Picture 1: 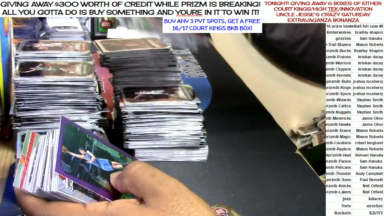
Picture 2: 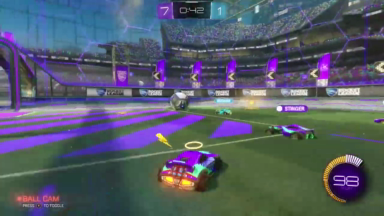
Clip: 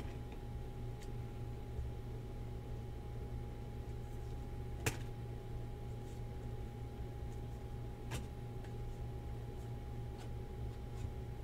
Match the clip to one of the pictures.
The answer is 1